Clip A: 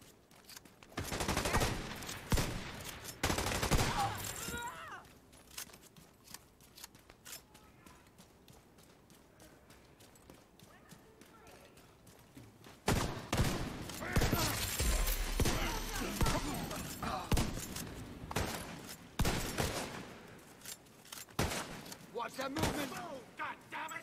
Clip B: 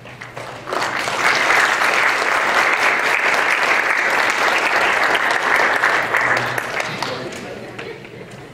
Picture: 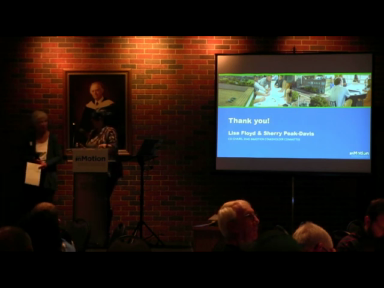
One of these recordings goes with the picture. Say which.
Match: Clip B